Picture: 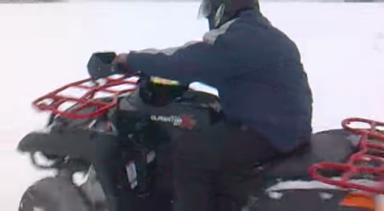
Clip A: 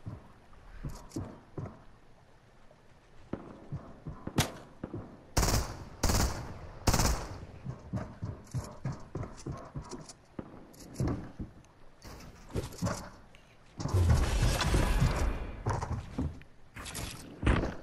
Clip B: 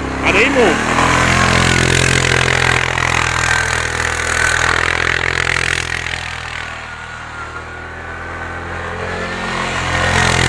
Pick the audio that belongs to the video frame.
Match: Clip B